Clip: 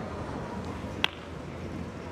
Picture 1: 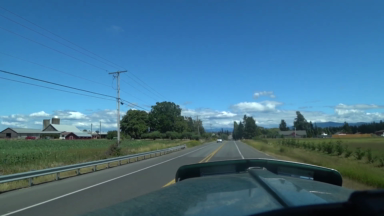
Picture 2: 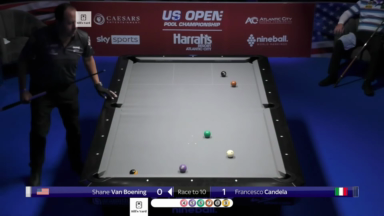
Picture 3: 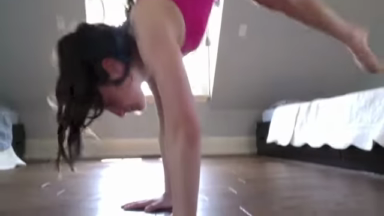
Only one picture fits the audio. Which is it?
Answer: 2